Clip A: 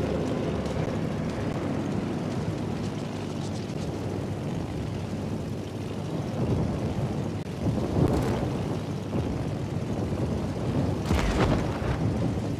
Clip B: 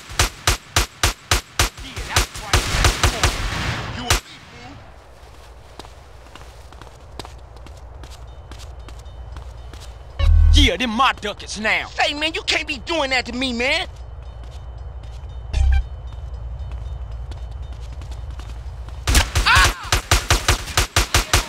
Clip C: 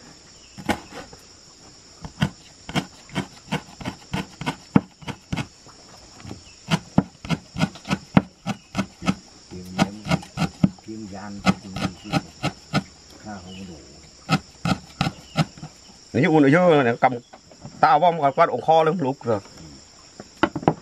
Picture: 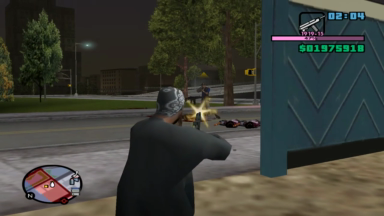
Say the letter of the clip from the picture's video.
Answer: B